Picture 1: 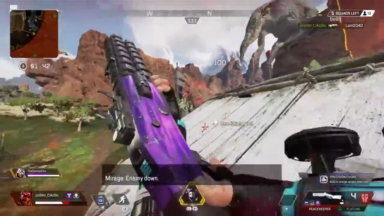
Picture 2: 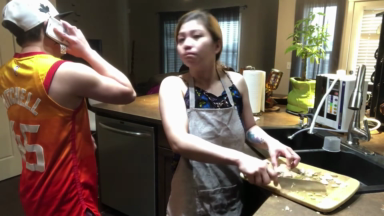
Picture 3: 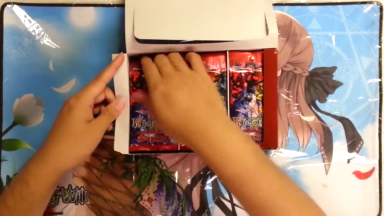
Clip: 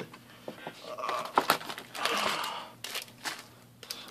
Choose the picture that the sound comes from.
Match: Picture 3